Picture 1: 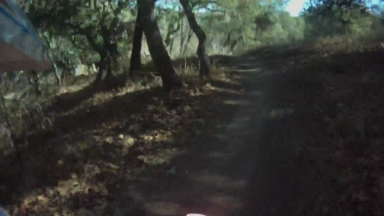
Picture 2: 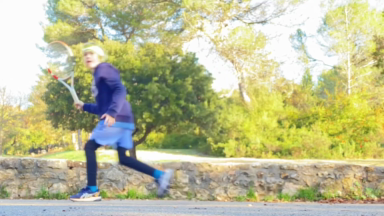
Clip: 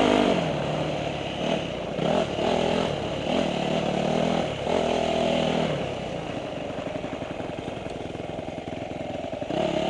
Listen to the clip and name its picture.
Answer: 1